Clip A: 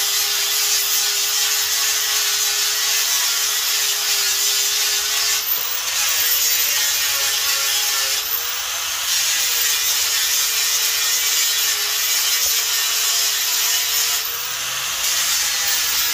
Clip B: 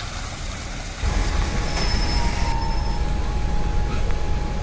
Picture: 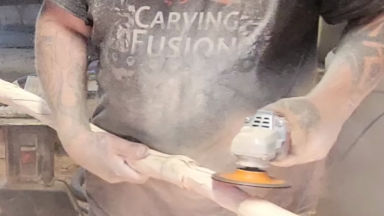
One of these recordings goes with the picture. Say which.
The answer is A